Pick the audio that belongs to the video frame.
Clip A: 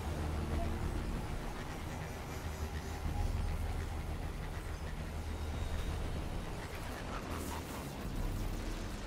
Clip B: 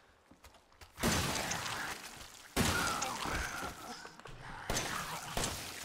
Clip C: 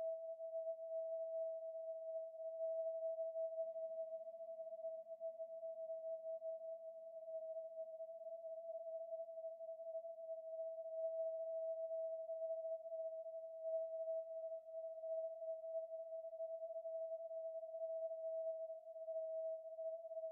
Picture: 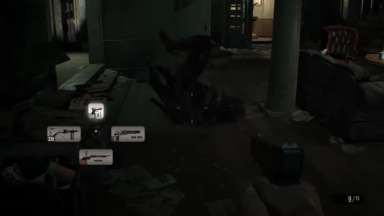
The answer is B